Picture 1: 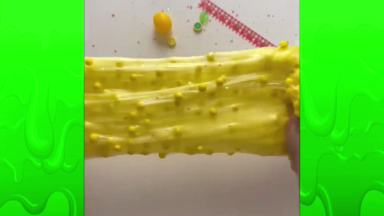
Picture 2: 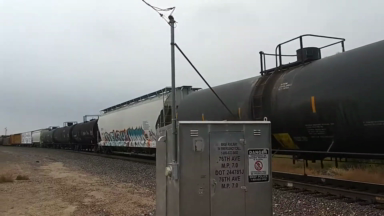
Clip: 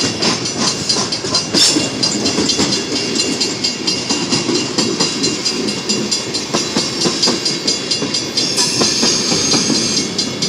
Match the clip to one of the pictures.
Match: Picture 2